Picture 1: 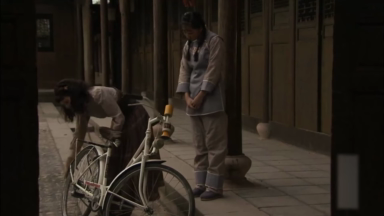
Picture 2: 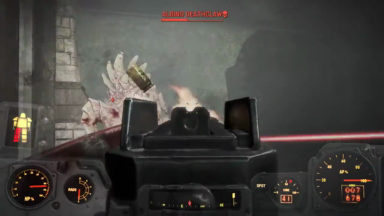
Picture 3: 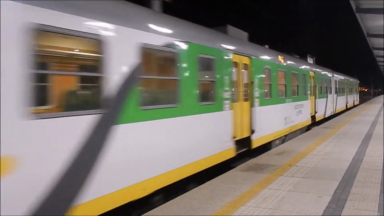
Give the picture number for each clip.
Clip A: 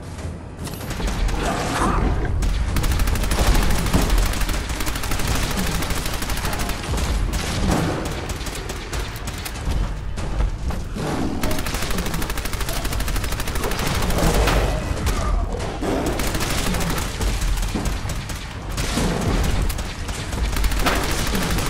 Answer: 2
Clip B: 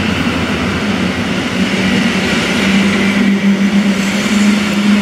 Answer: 3